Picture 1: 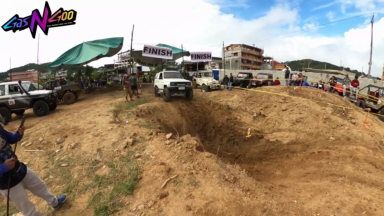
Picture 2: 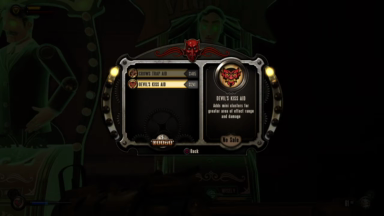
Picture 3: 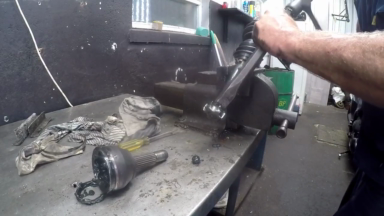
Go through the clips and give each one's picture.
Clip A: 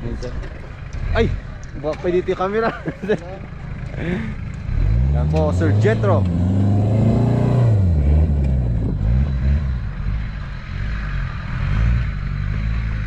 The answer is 1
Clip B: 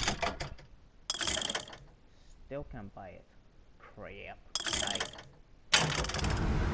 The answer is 2